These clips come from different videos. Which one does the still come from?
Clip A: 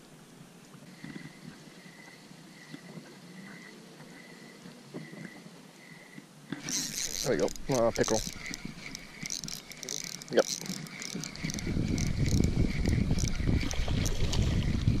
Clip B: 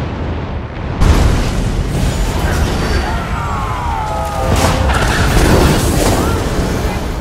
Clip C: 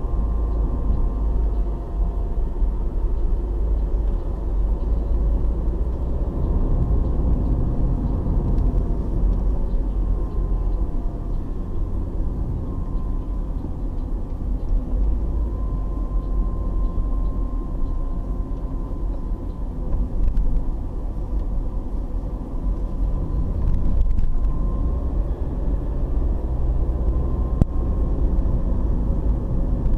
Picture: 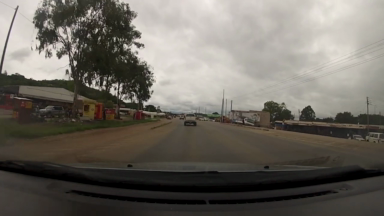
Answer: C